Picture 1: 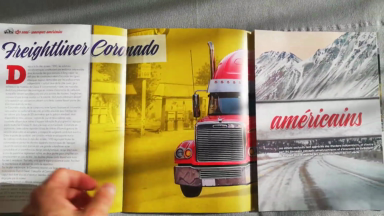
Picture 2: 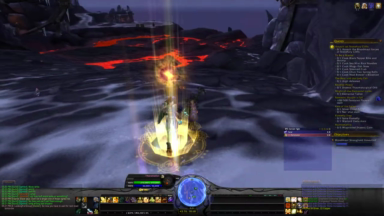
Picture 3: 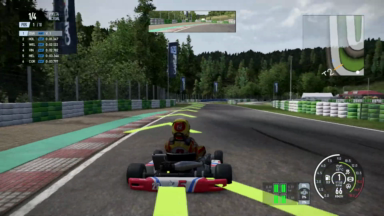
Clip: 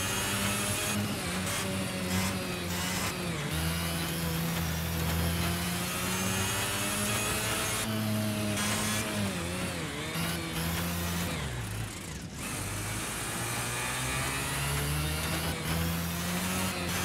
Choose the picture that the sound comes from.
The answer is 3